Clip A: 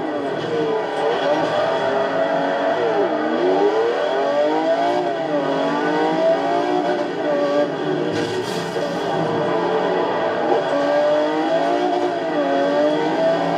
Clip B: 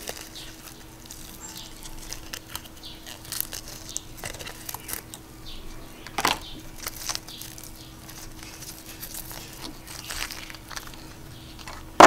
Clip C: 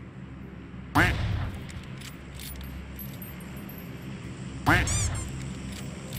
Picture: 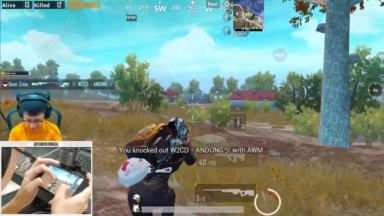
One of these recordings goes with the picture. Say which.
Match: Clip C